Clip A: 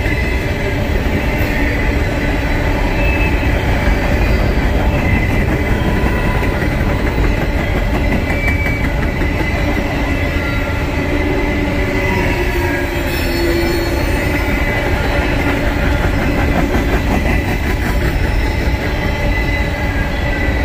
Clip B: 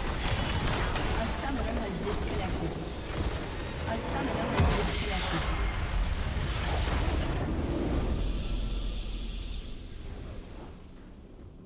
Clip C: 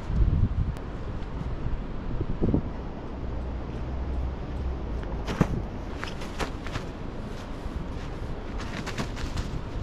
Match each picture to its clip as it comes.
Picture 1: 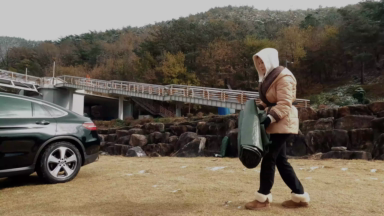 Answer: C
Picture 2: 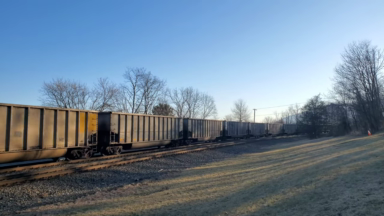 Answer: A